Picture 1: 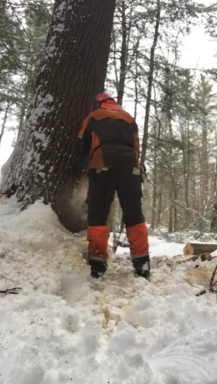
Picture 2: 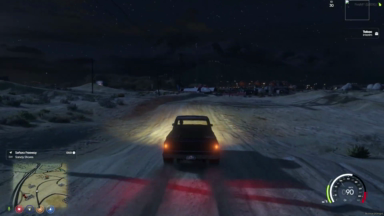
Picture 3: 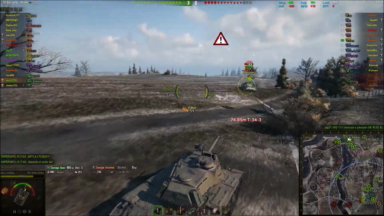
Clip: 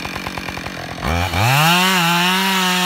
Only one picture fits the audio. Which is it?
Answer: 1